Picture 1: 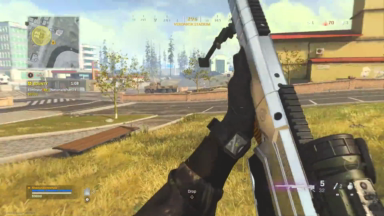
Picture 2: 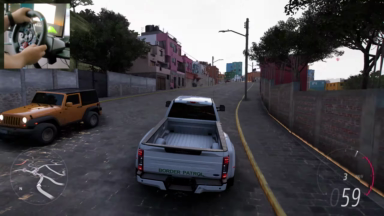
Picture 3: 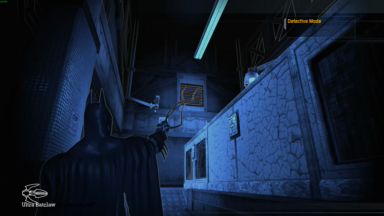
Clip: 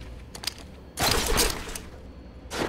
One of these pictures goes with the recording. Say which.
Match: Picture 3